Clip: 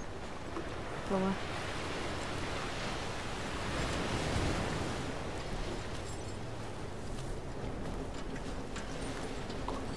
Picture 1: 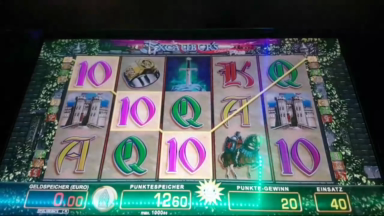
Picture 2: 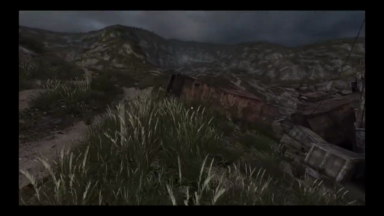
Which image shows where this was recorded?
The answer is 2